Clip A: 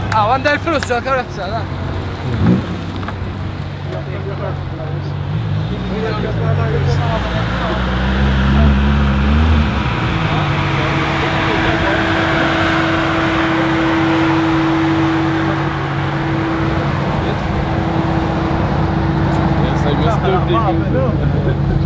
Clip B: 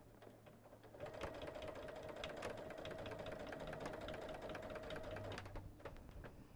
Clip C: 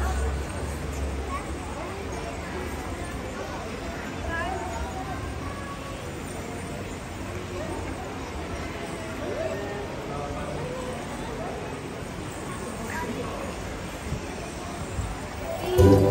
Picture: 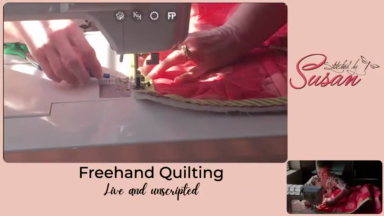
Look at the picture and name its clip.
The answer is B